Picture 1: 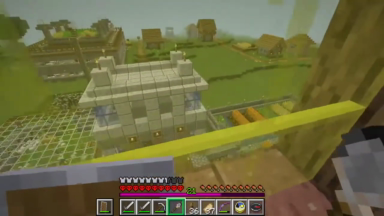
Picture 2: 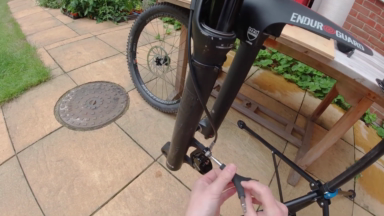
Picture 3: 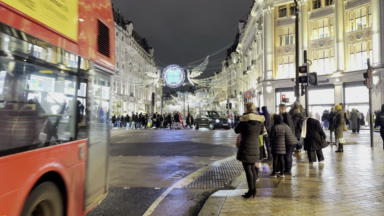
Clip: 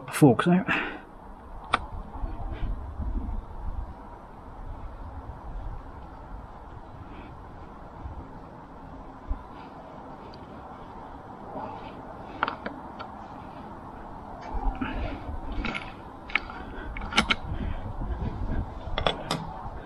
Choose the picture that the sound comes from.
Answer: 2